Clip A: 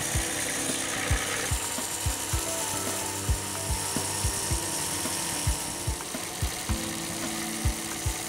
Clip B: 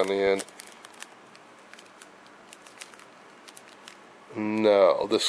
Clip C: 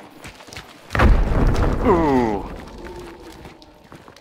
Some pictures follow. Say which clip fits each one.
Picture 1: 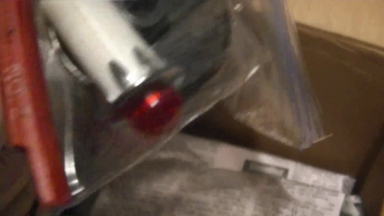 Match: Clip B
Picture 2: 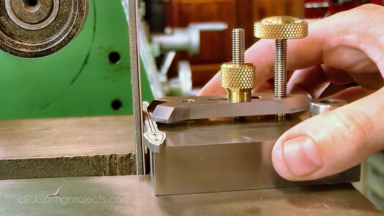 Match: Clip A